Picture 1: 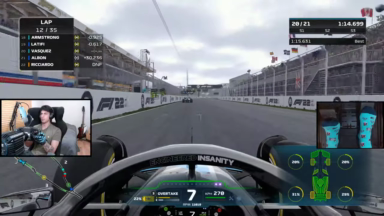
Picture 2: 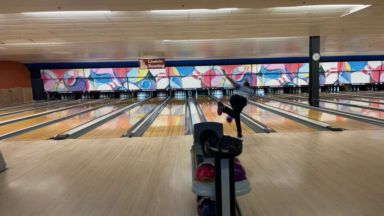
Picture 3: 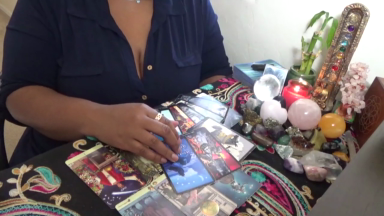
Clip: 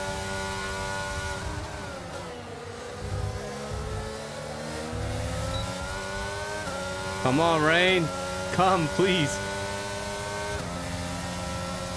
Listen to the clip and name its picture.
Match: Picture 1